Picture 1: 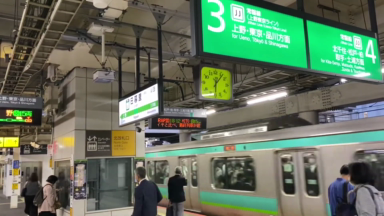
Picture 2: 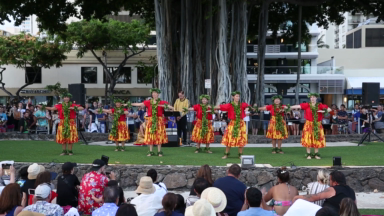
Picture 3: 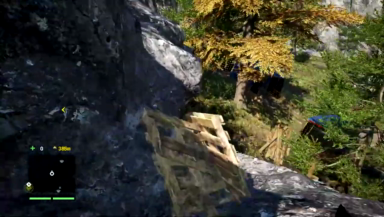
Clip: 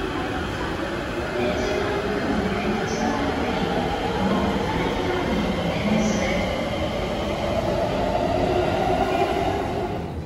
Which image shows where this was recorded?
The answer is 1